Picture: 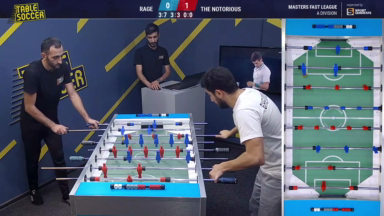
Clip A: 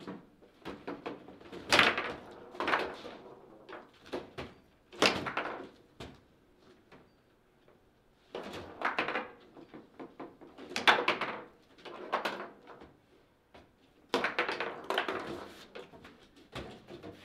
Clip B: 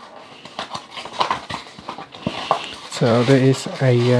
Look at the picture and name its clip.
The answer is A